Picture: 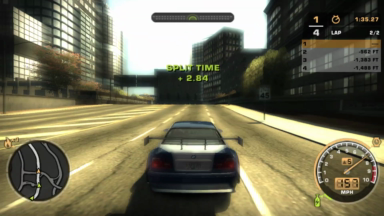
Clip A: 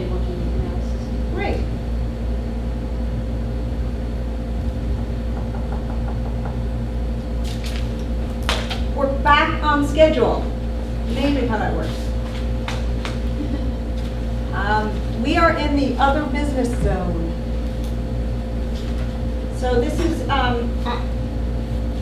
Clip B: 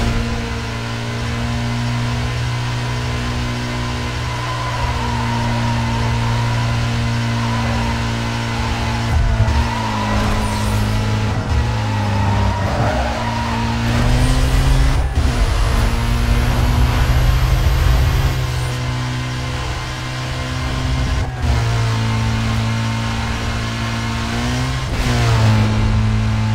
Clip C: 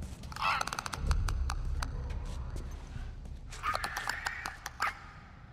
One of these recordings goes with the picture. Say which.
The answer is B